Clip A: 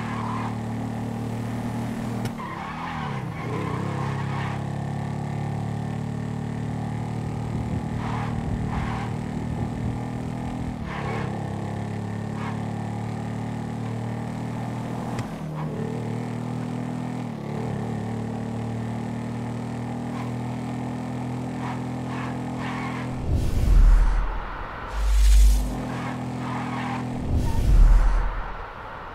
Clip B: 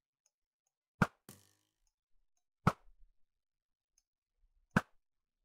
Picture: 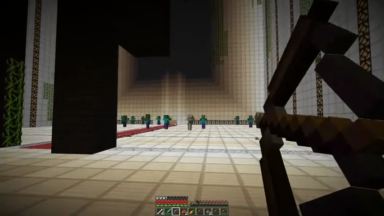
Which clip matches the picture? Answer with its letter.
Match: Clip B